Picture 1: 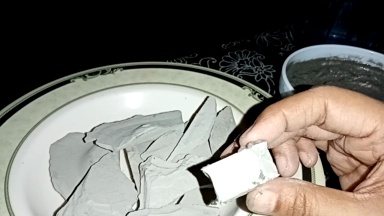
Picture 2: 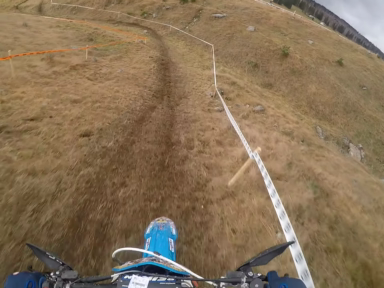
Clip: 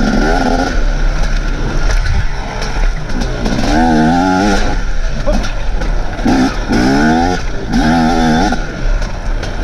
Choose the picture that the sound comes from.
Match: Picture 2